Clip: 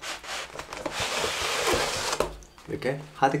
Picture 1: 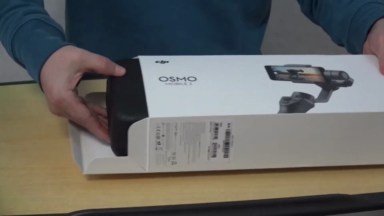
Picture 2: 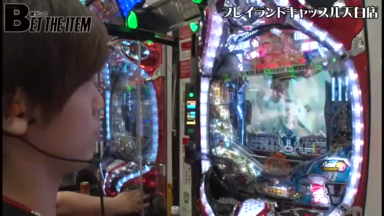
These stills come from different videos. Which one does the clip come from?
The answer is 1